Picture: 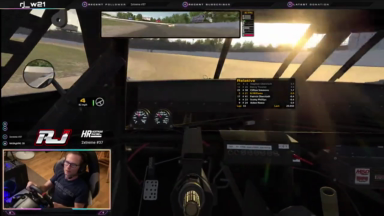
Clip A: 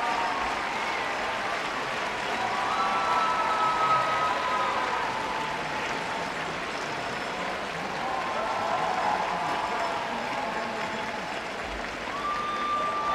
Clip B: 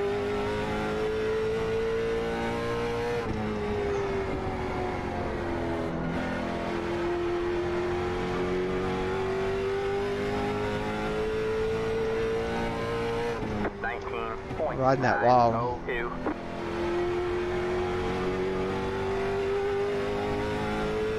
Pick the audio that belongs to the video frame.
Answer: B